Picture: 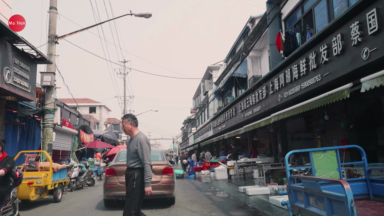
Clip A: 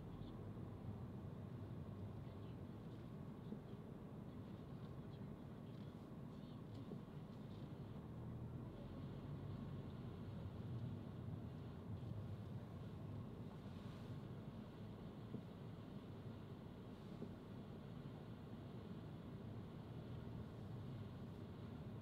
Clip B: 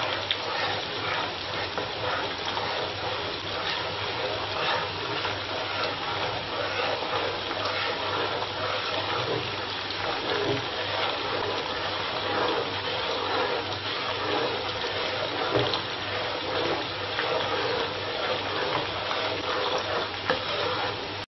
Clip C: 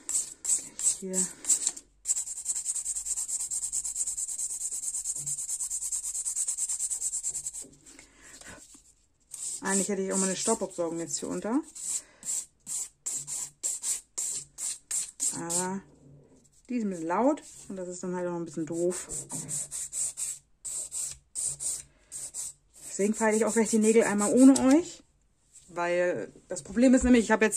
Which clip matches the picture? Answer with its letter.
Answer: A